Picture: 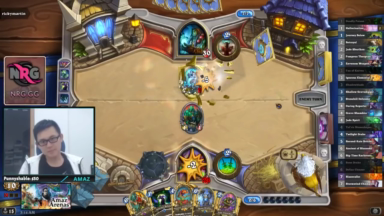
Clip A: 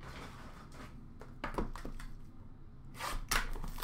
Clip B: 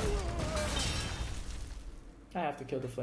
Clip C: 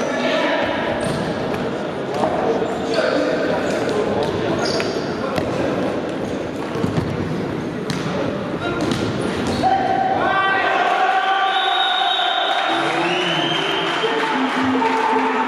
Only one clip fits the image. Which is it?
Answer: B